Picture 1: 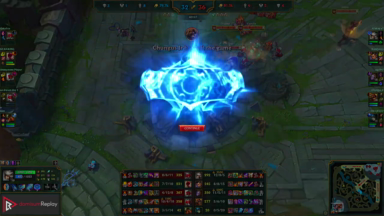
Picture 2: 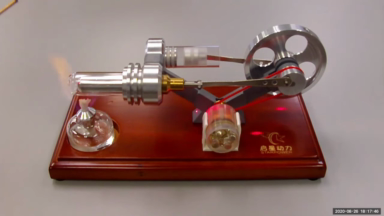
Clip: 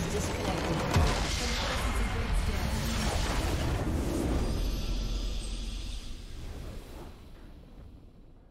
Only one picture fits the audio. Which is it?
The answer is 1